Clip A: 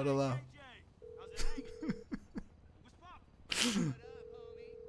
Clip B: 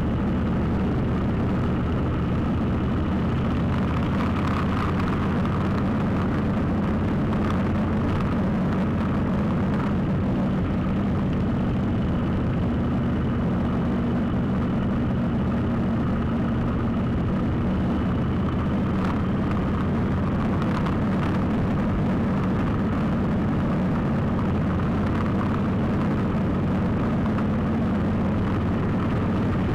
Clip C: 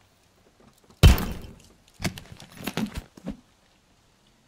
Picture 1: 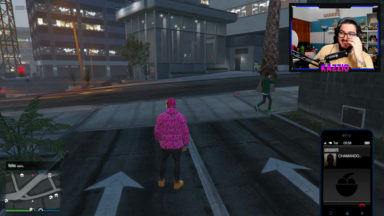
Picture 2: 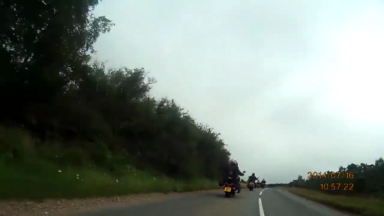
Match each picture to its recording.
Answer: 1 A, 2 B